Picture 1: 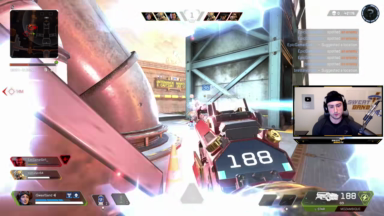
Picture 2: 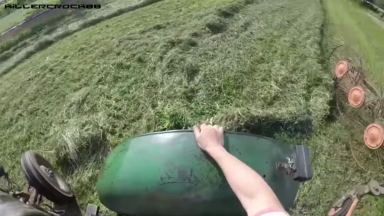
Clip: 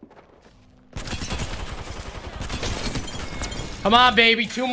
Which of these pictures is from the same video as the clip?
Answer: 1